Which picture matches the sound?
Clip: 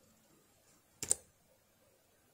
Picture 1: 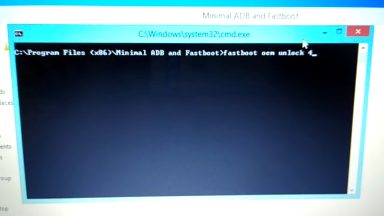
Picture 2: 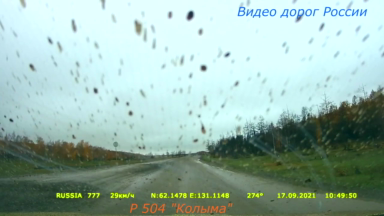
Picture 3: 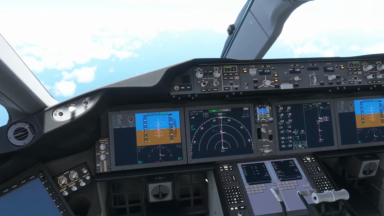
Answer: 1